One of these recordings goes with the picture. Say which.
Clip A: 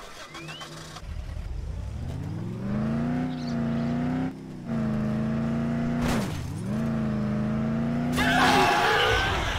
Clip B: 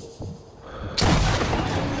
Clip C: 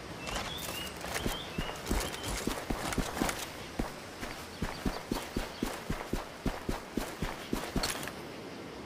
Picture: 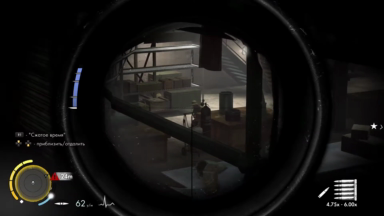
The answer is B